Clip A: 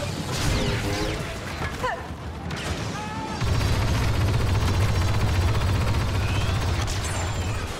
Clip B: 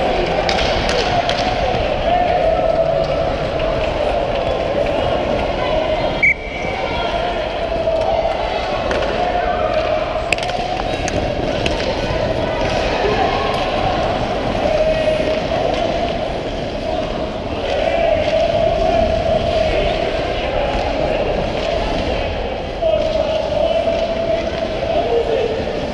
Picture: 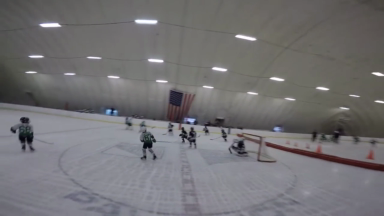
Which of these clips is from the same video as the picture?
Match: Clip B